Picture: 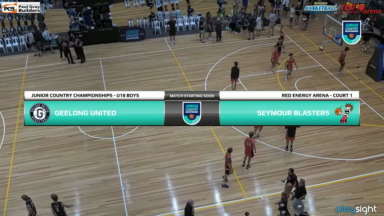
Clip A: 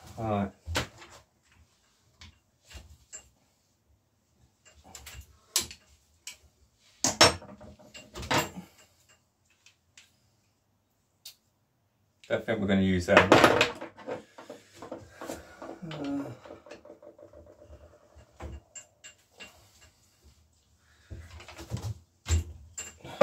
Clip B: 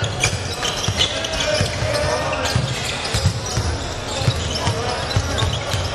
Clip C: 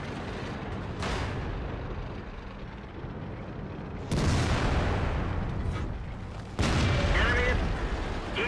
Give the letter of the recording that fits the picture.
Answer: B